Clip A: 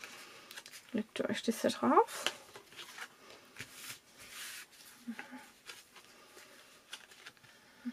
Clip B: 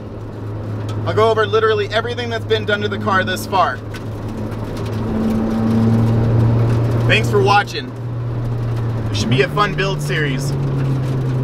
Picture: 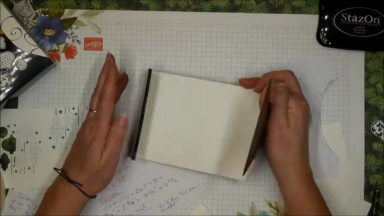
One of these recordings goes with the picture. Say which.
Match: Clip A